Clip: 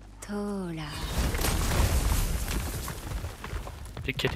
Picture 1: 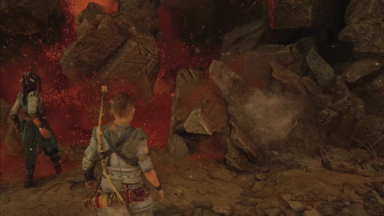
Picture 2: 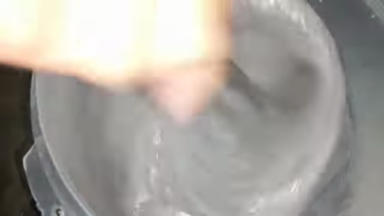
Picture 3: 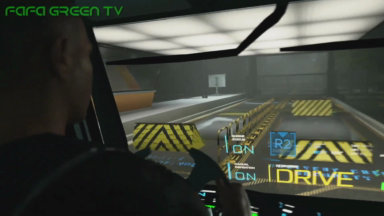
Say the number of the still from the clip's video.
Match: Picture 1